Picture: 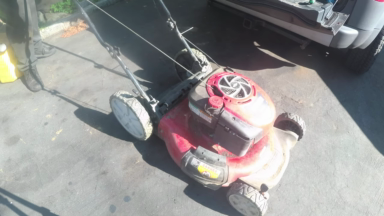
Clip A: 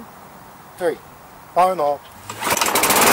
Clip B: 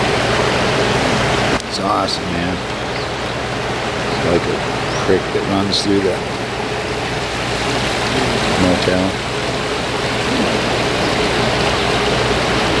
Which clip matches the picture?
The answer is A